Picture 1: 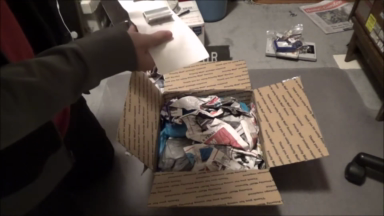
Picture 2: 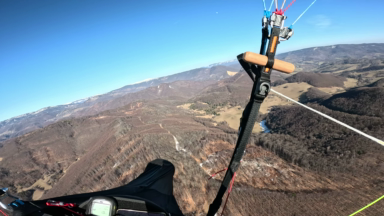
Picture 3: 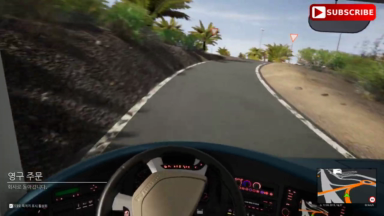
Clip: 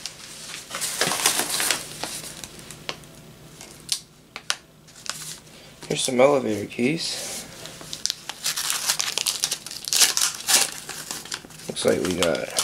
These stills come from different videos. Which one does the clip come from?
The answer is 1